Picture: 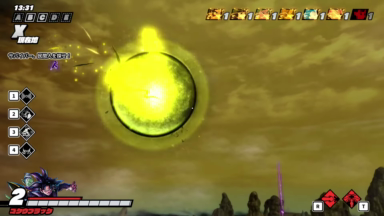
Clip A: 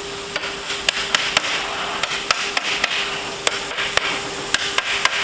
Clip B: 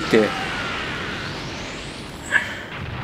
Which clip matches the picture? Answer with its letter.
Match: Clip B